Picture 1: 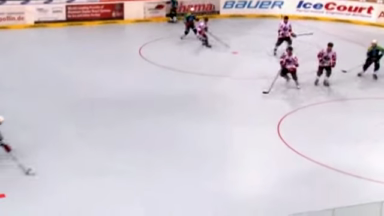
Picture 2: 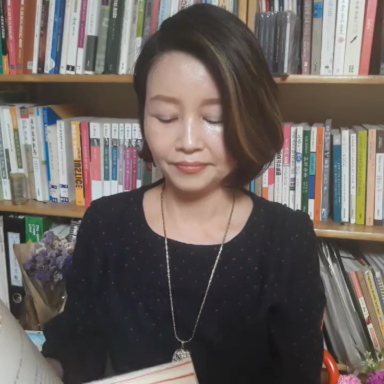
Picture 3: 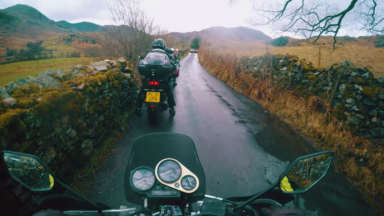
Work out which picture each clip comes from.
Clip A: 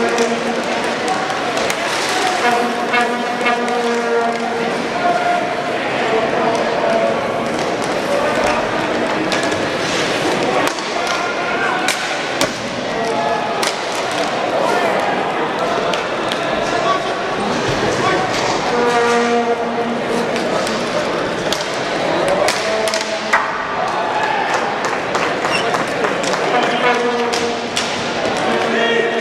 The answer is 1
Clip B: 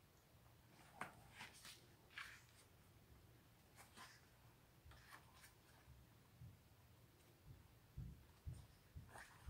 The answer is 2